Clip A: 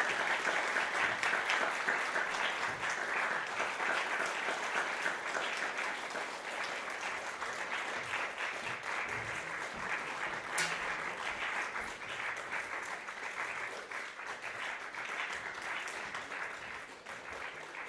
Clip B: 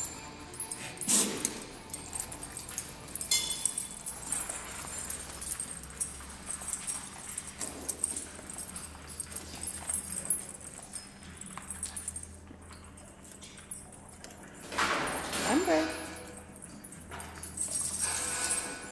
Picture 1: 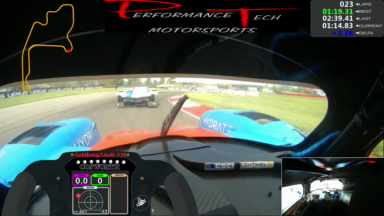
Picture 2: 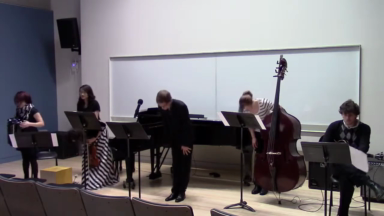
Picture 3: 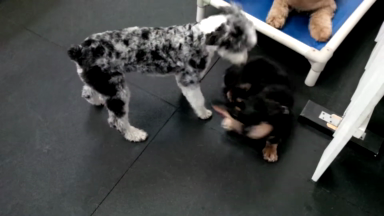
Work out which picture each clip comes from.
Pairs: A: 2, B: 3